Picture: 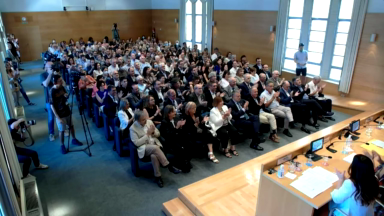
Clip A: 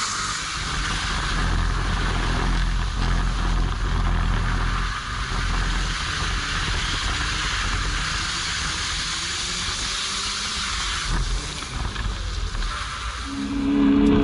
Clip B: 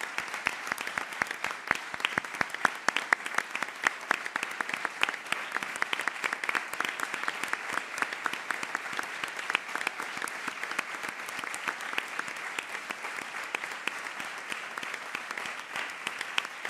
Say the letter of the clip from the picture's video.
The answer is B